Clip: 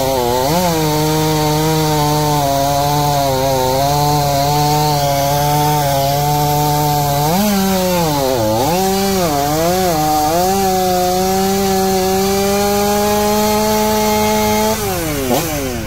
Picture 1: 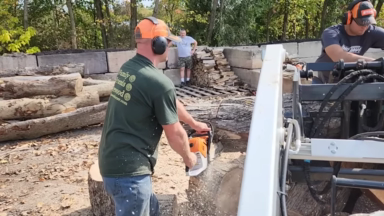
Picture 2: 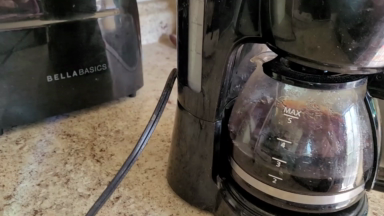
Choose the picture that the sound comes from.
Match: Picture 1